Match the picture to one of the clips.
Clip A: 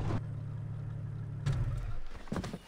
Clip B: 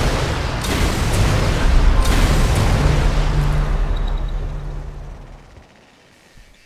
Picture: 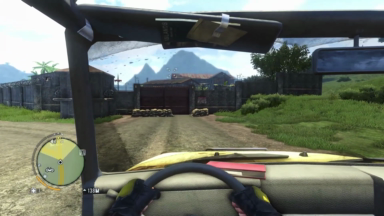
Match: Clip A